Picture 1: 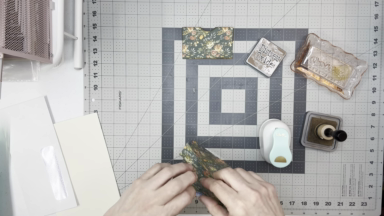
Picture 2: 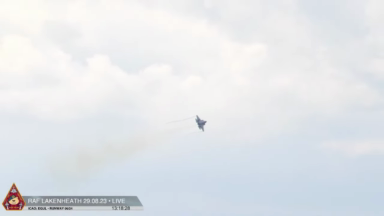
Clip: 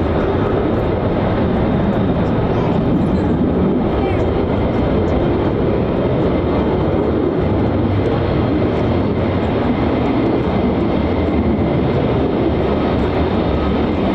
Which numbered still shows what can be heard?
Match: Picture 2